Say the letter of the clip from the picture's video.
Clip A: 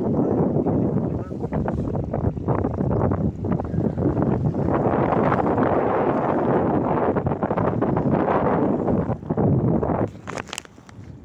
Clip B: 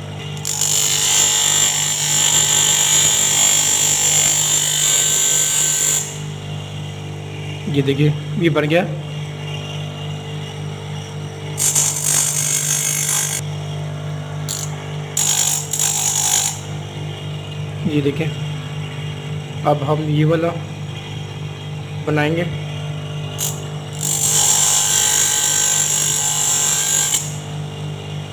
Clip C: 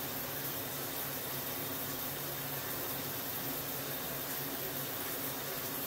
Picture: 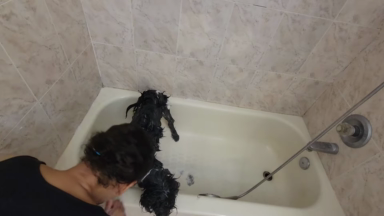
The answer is C